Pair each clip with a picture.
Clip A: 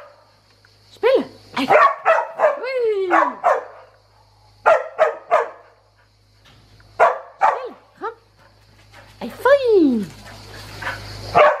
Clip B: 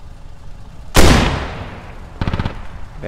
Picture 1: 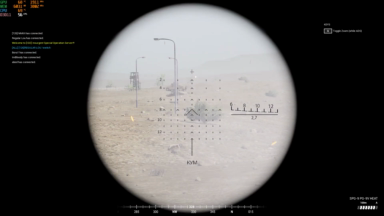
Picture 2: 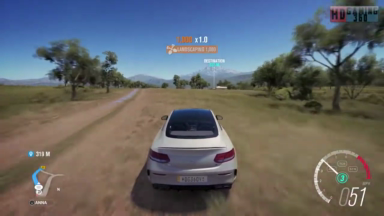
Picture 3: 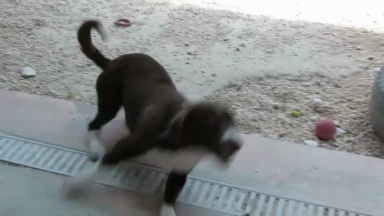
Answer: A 3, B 1